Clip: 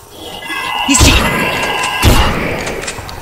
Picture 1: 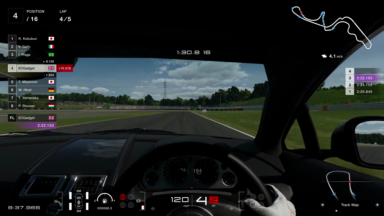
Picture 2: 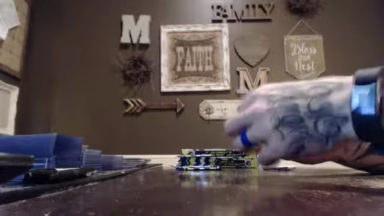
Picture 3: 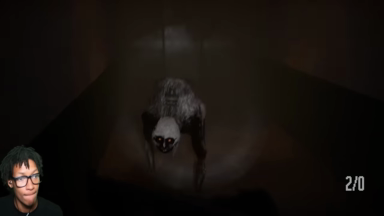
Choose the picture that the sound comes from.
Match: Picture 3